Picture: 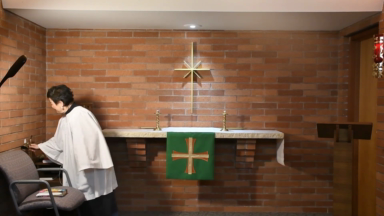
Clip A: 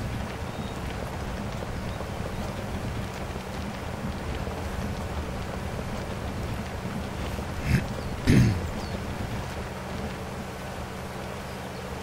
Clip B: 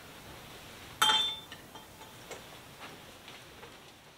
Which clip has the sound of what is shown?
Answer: B